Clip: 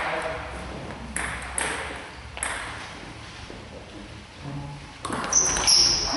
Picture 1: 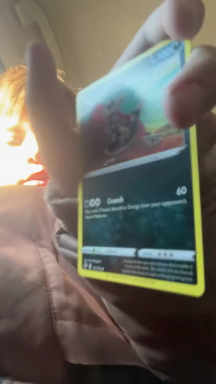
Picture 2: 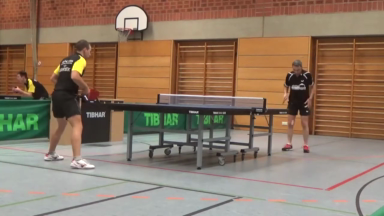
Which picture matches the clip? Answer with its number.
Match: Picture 2